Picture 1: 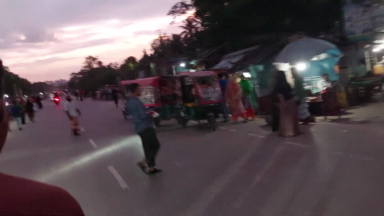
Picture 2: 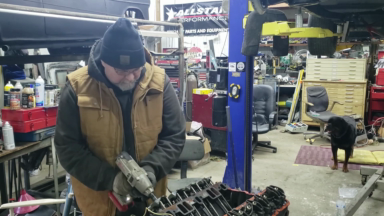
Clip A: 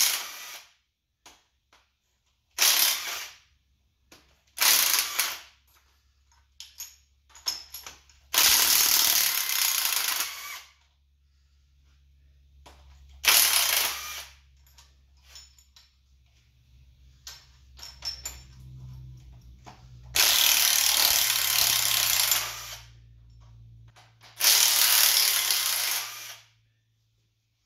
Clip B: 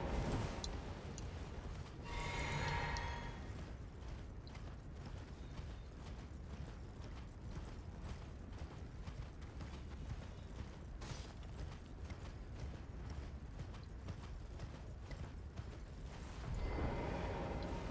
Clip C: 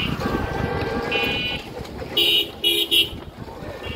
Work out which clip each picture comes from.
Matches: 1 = C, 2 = A